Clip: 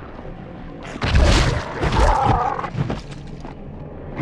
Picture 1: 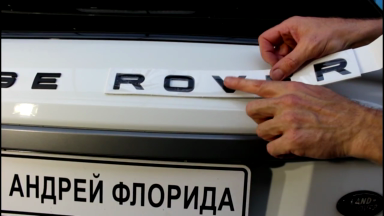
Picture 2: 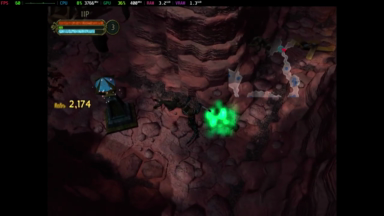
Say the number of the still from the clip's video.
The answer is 2